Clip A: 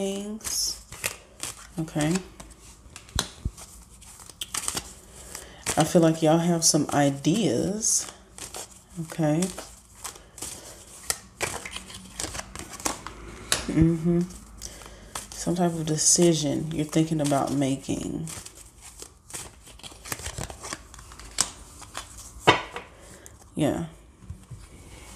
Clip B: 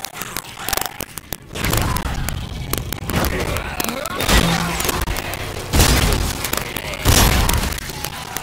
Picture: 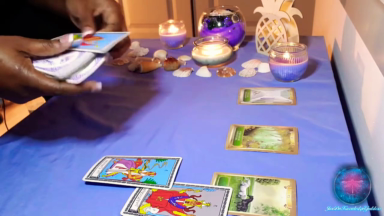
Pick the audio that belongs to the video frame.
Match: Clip A